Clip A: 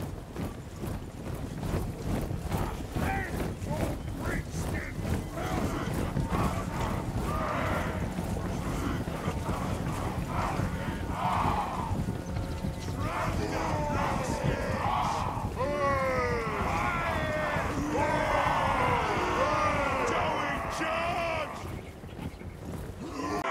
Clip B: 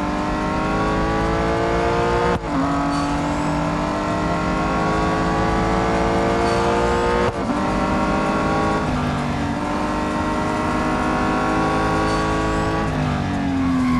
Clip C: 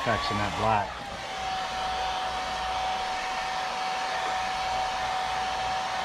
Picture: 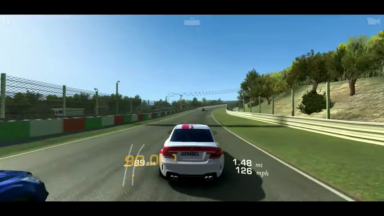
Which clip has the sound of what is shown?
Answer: B